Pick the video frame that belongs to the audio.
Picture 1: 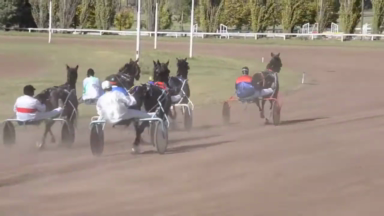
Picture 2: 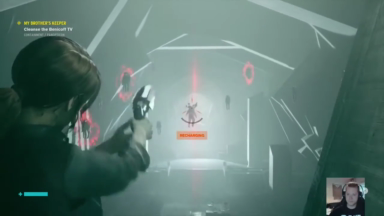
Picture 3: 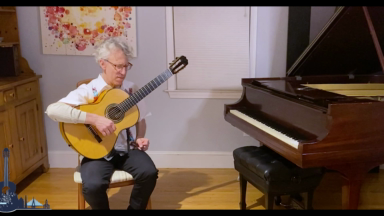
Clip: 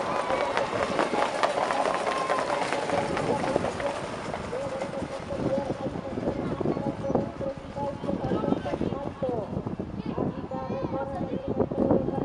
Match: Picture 1